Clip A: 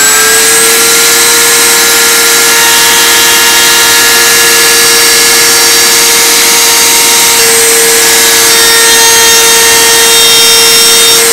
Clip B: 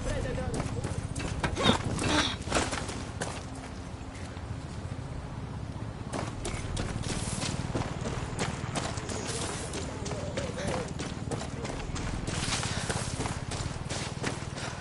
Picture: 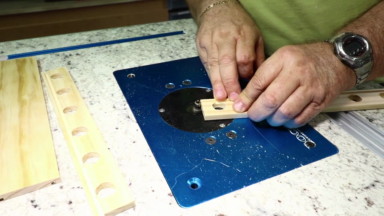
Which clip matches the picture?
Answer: A